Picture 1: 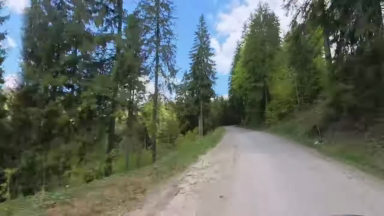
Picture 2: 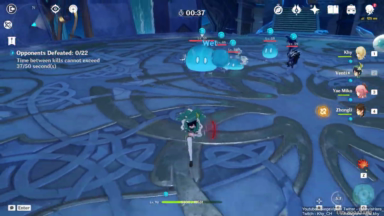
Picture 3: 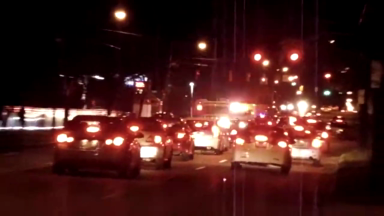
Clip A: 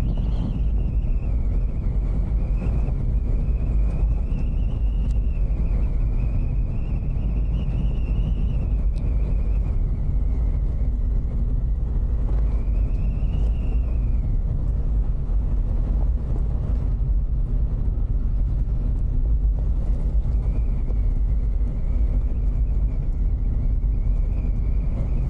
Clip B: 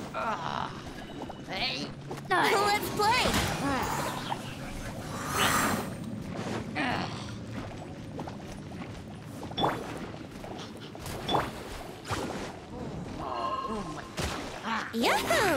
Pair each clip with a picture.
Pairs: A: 1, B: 2